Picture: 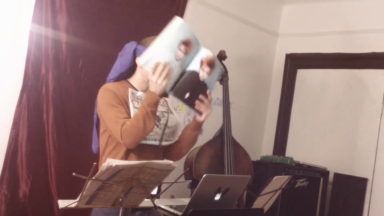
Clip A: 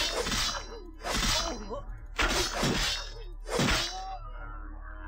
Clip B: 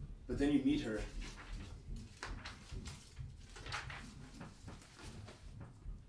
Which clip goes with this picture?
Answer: B